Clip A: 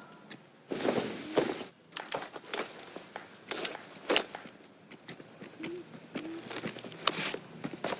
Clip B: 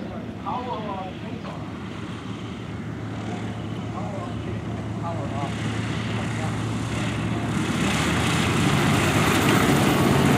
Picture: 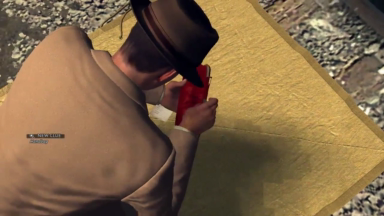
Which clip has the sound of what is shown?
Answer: A